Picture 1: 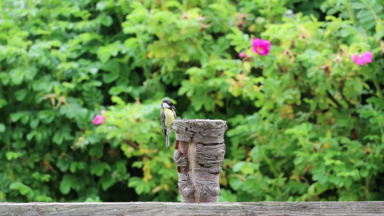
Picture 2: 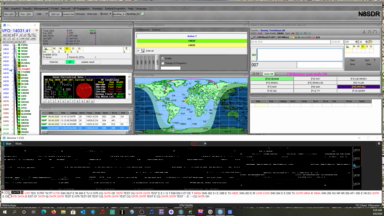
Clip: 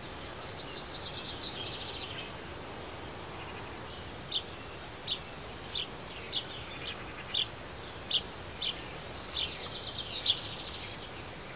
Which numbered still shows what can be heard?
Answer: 1